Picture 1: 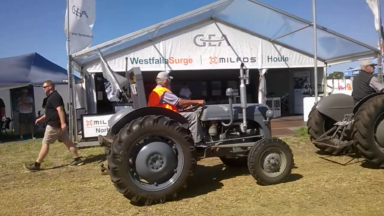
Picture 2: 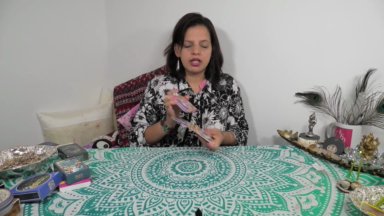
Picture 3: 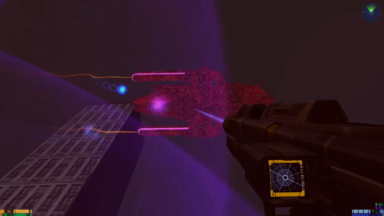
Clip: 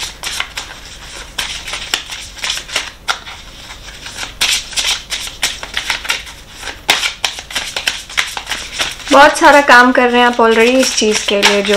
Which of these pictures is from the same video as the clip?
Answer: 2